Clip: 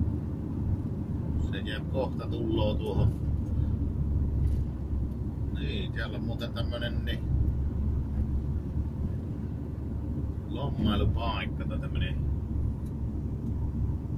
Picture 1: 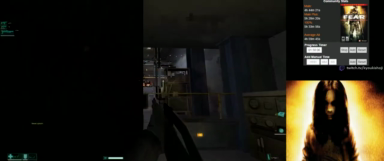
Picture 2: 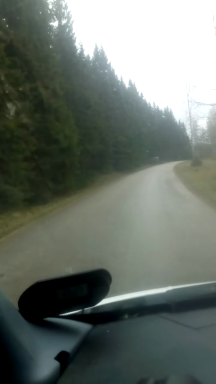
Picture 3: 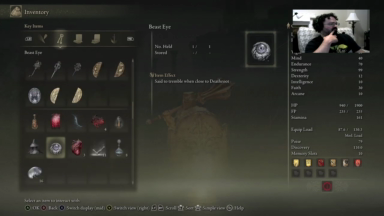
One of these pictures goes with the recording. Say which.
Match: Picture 2